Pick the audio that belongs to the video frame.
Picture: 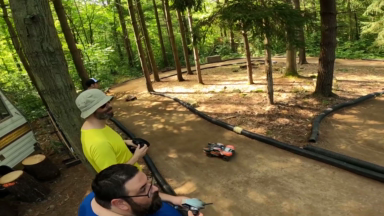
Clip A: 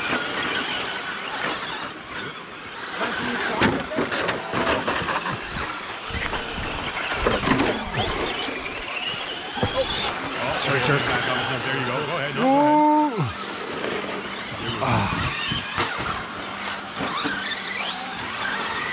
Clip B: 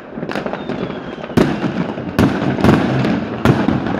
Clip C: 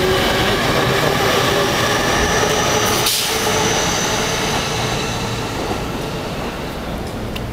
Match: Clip A